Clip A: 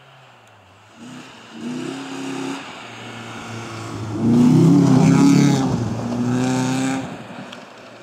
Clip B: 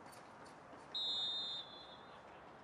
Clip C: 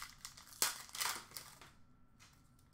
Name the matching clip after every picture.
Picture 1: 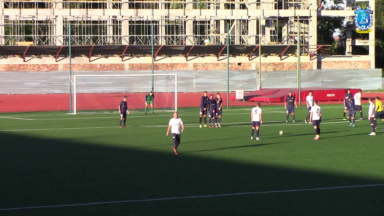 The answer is B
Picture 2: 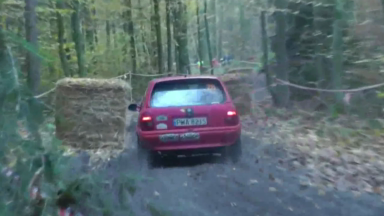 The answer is A